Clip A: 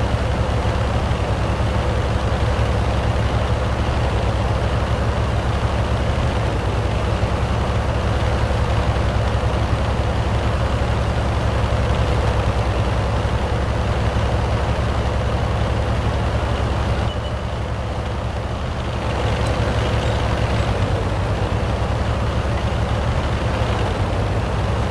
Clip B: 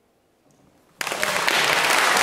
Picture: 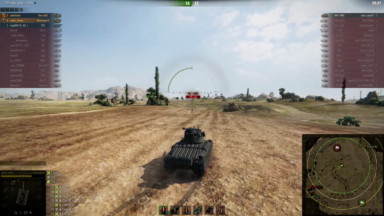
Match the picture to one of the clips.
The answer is A